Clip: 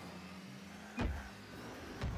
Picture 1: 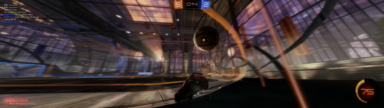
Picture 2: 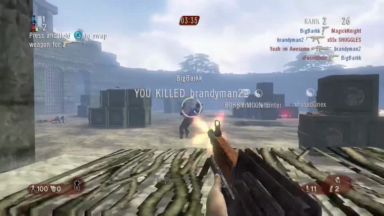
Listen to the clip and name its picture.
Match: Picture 1